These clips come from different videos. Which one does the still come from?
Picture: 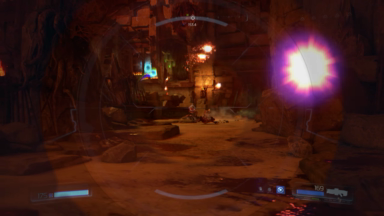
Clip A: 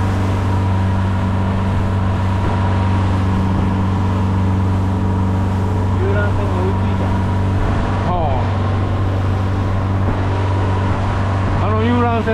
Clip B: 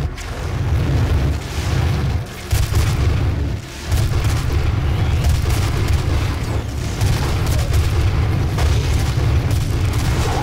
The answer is B